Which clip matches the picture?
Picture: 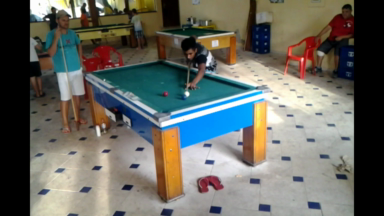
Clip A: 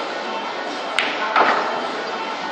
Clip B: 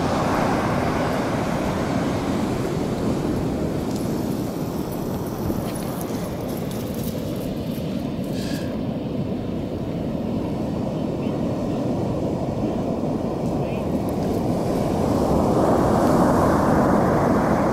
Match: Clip A